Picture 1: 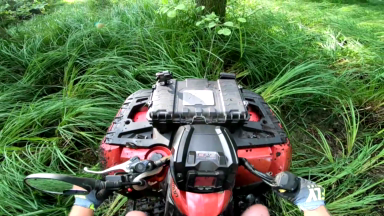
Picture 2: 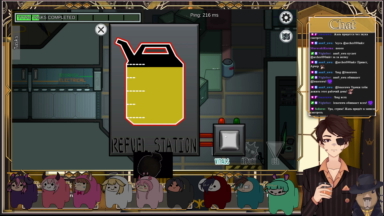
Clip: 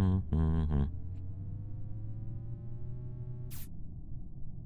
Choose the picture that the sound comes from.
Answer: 2